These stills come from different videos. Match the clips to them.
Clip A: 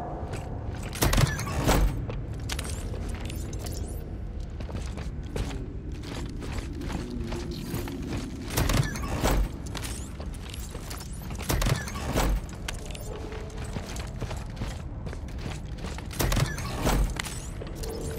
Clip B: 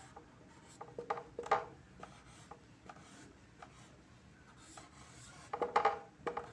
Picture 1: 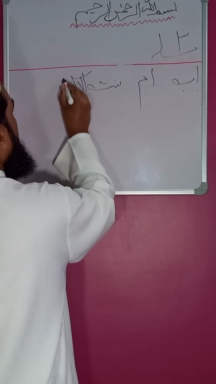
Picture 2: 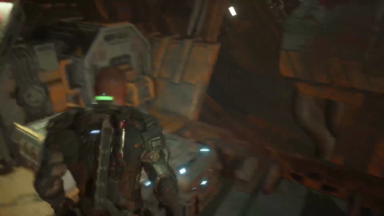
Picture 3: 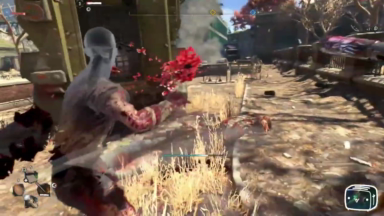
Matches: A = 2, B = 1